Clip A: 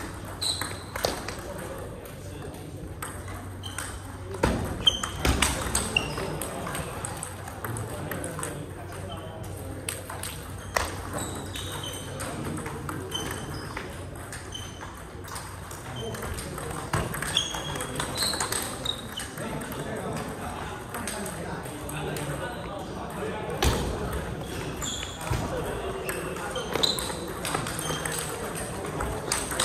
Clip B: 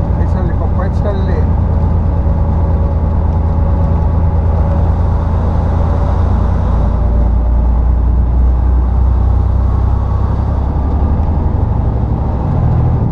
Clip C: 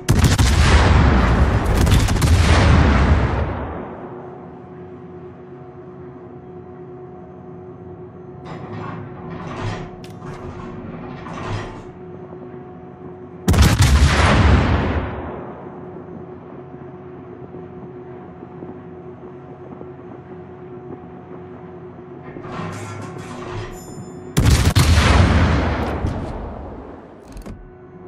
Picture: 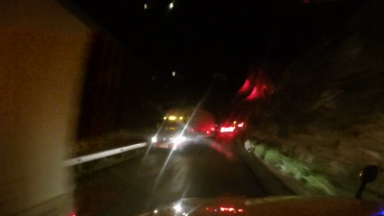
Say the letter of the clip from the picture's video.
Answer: B